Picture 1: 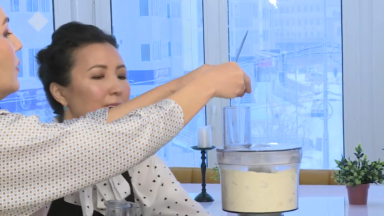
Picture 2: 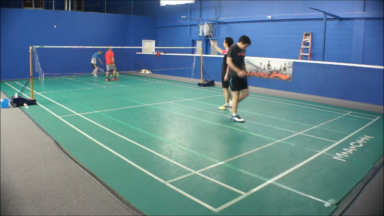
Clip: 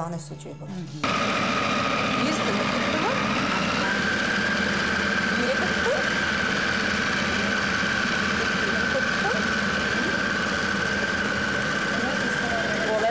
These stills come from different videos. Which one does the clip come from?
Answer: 1